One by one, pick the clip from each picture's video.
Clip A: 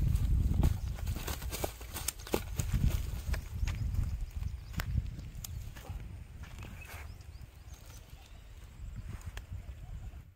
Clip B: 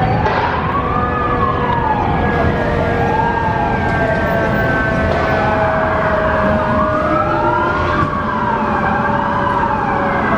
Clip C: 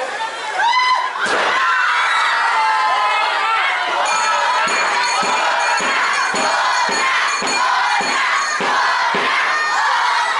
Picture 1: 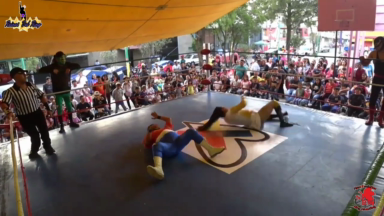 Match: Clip C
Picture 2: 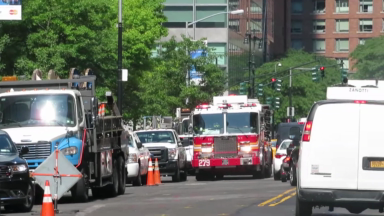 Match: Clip B